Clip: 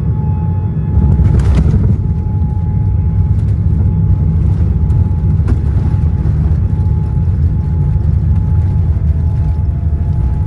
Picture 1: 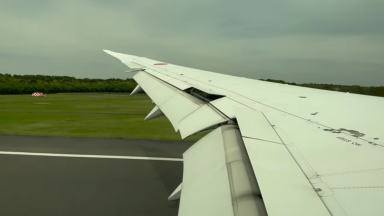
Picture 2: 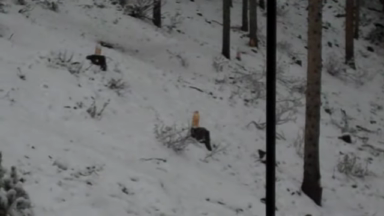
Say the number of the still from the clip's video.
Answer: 1